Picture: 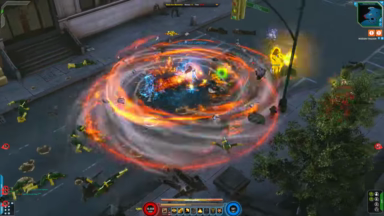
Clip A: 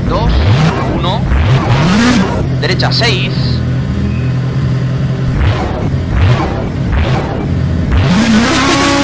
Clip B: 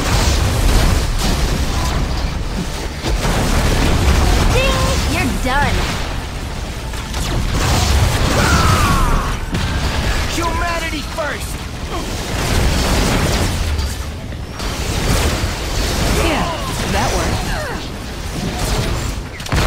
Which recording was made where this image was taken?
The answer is B